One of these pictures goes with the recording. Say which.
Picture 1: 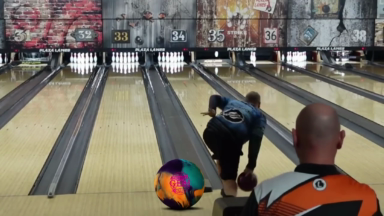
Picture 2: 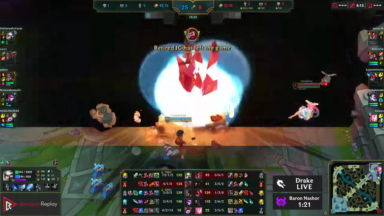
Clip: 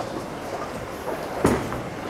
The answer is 1